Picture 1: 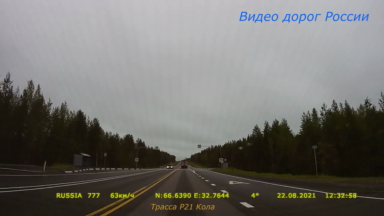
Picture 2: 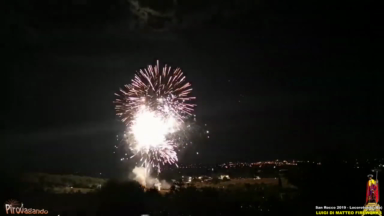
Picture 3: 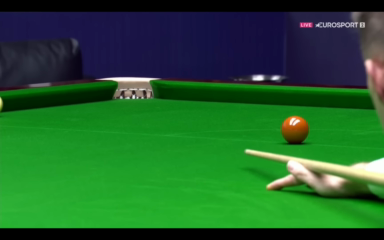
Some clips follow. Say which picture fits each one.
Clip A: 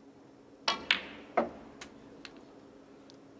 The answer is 3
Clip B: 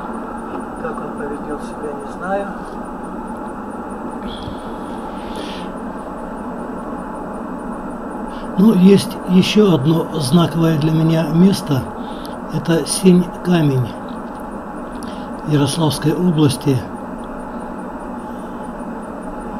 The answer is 1